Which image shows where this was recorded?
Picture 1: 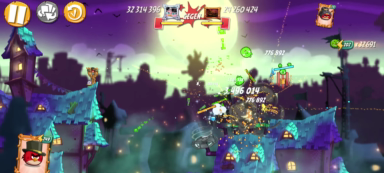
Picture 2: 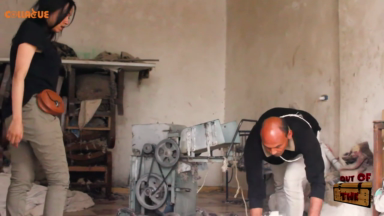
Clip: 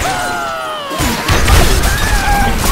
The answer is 1